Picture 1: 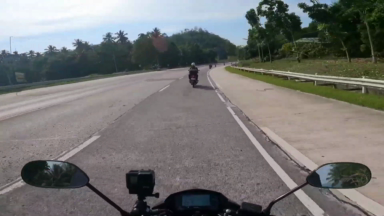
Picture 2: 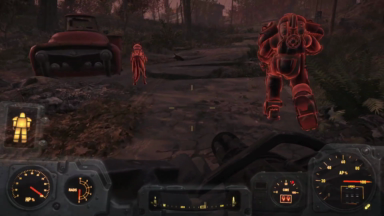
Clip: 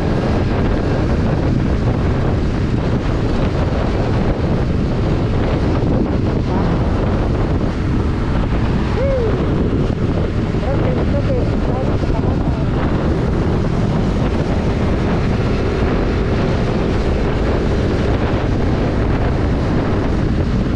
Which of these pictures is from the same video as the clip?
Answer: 1